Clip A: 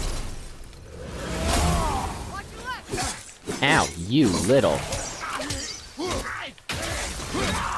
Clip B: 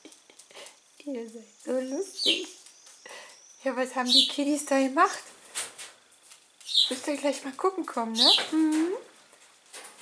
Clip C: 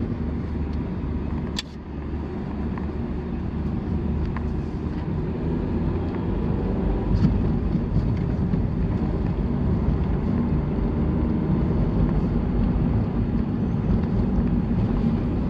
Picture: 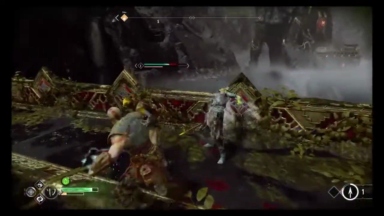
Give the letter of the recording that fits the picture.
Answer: A